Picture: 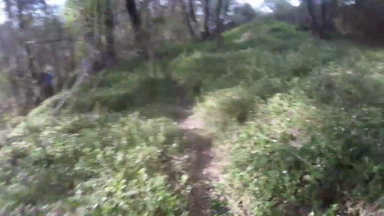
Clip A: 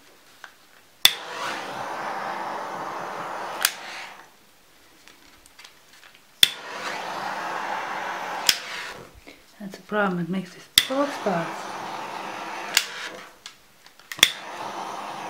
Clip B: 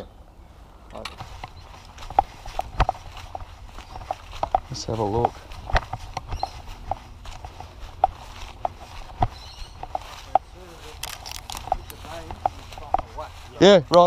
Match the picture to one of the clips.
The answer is B